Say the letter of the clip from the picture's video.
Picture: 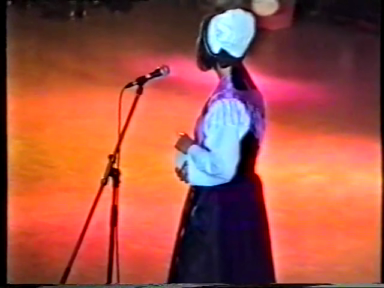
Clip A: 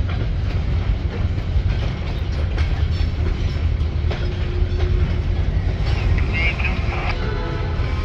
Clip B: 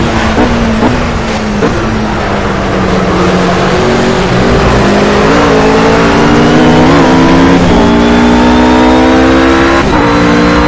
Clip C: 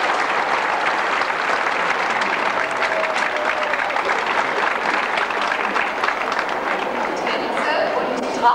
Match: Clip C